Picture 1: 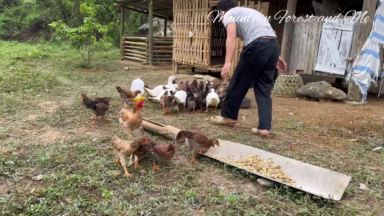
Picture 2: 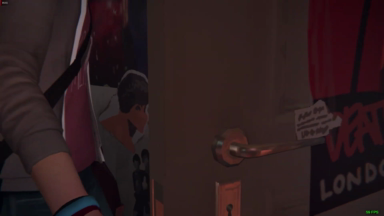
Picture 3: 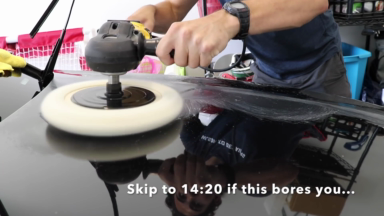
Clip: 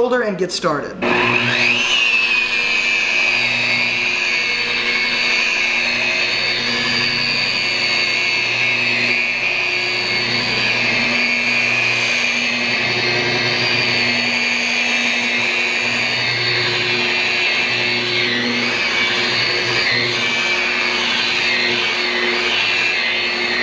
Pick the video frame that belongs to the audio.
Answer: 3